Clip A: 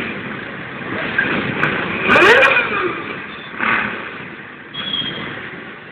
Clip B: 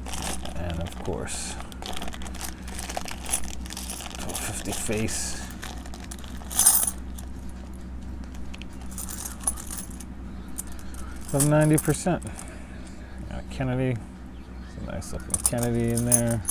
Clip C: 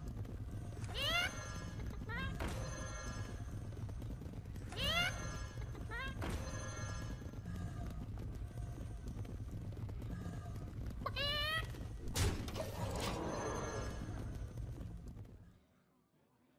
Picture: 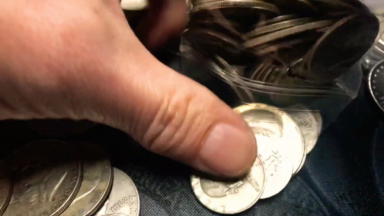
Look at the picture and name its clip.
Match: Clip B